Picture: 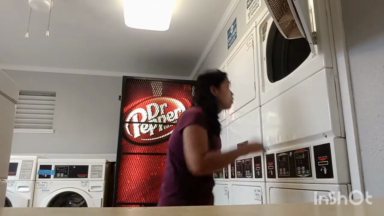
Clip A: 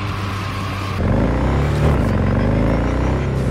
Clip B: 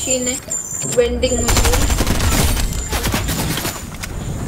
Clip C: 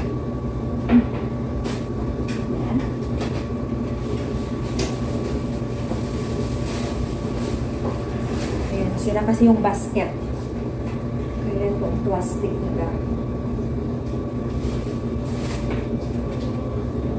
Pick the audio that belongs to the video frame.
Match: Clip C